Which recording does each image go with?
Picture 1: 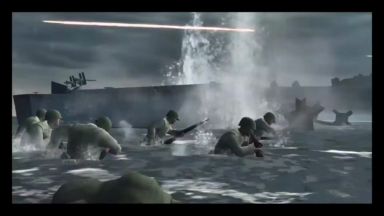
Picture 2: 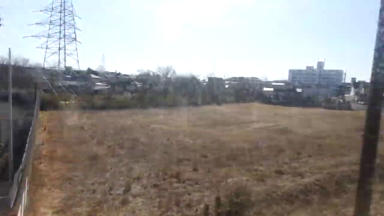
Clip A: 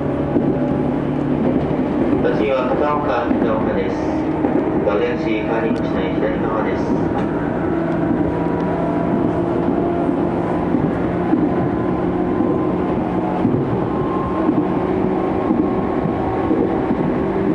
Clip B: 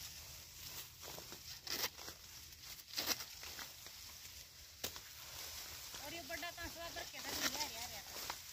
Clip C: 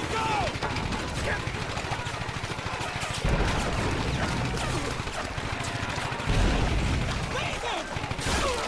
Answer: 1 C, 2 A